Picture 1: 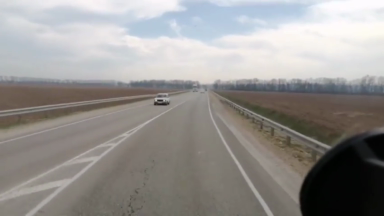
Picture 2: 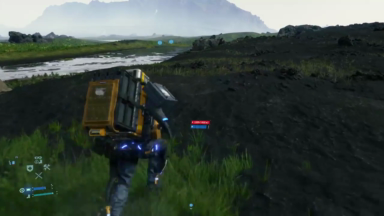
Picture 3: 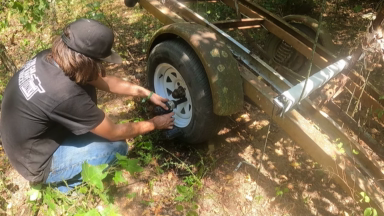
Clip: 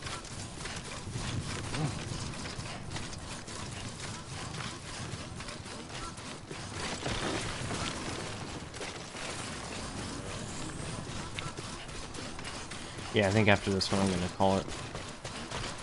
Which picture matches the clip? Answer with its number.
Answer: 2